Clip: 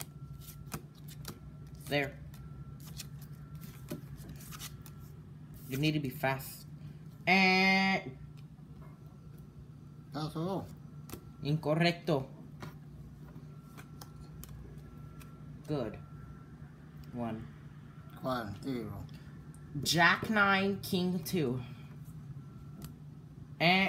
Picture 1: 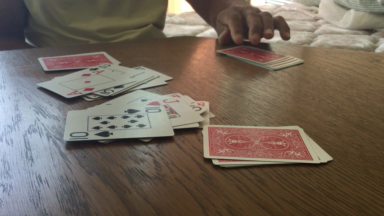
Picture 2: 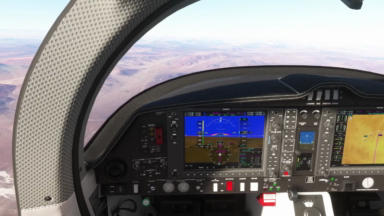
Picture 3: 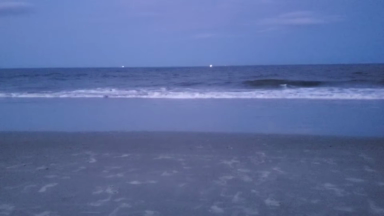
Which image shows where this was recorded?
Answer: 1